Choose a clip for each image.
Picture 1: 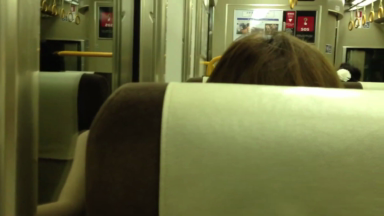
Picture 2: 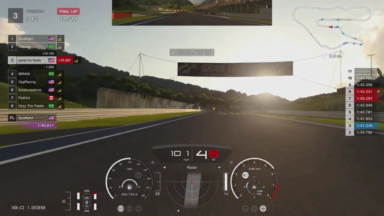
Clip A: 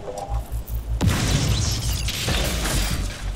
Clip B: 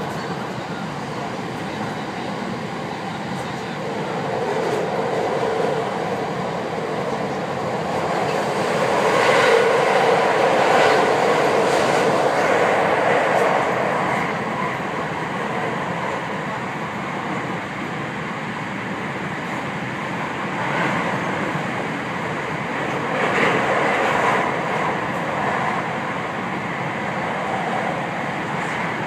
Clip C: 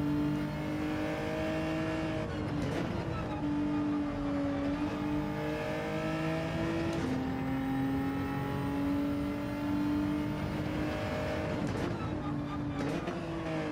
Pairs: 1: B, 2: C